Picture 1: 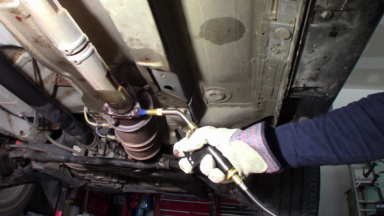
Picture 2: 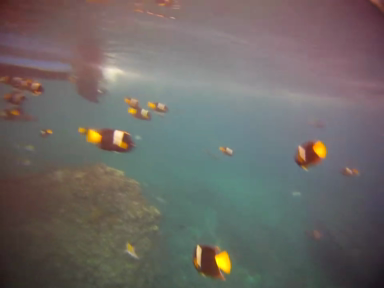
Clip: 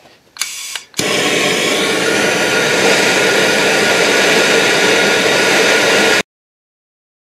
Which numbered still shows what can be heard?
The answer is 1